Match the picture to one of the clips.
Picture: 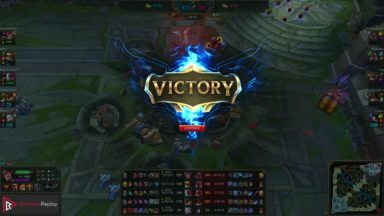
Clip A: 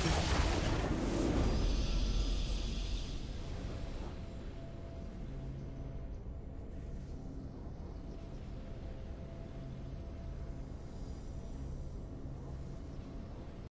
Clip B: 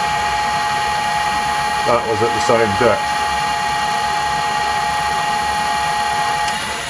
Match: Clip A